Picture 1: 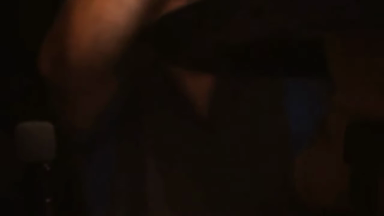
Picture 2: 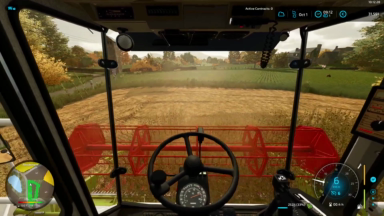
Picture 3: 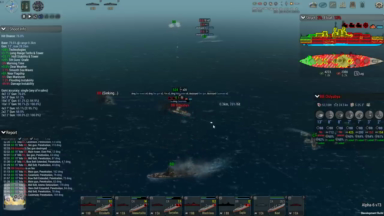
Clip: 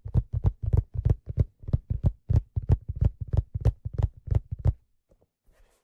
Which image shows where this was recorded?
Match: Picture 1